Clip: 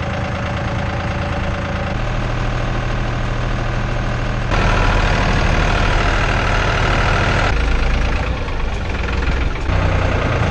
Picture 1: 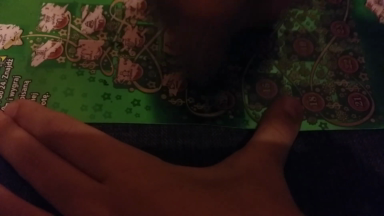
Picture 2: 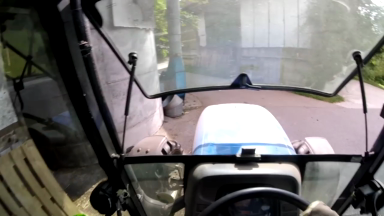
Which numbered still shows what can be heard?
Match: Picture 2